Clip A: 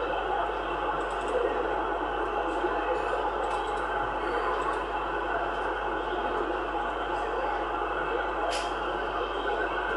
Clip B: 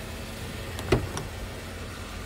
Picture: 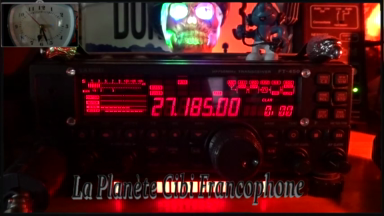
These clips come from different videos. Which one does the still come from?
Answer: A